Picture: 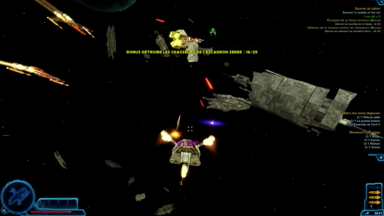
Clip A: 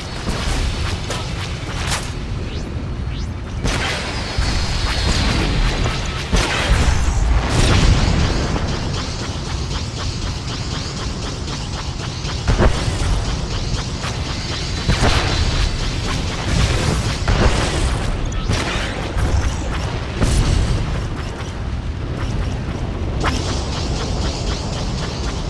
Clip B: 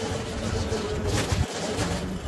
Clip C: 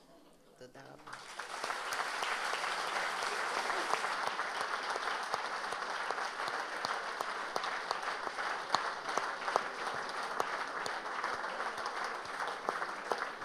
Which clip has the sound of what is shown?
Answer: A